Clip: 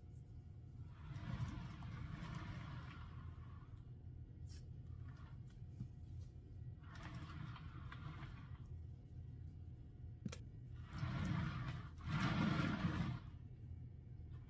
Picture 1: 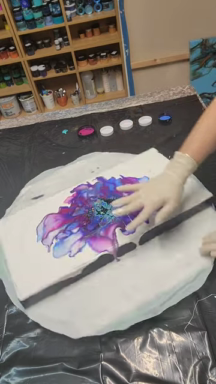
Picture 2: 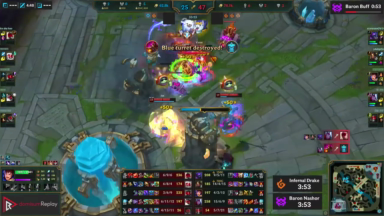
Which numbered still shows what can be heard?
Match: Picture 1